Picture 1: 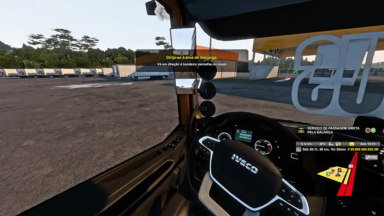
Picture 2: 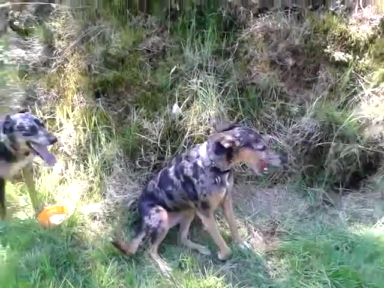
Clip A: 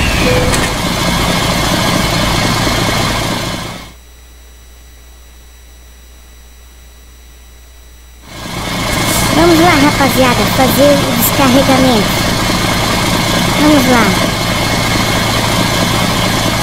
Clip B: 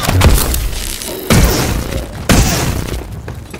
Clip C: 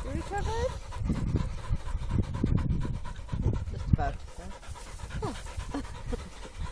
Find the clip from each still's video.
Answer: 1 A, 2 C